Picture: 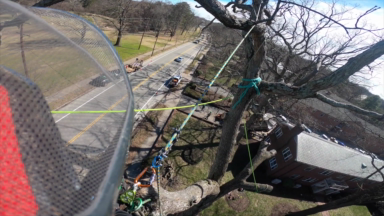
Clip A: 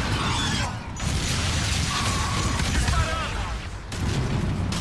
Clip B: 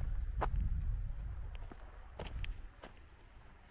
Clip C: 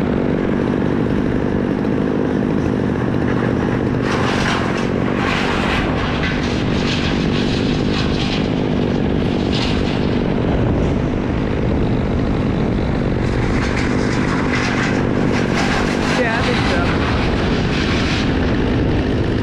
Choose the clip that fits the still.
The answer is C